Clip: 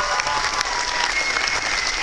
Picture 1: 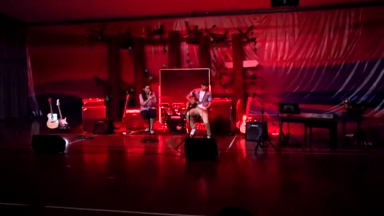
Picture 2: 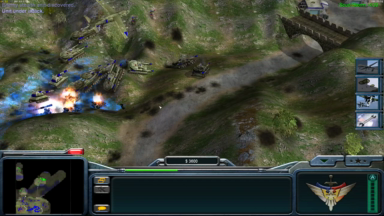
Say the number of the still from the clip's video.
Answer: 1